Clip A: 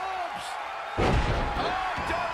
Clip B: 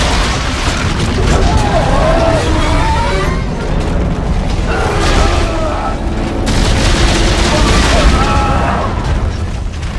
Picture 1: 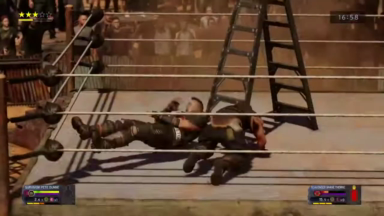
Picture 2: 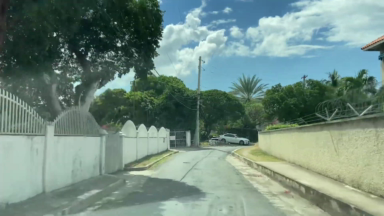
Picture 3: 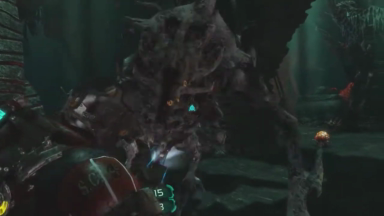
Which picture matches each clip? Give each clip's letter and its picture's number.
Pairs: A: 1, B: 3